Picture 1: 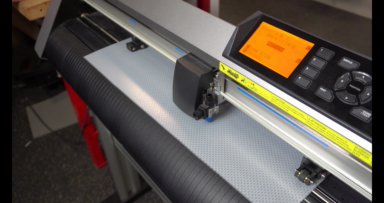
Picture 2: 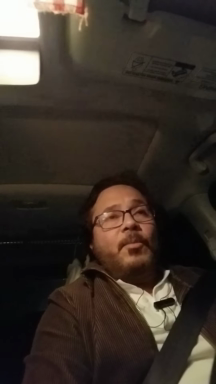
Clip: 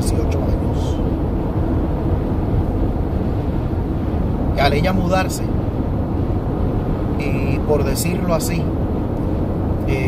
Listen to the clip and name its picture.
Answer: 2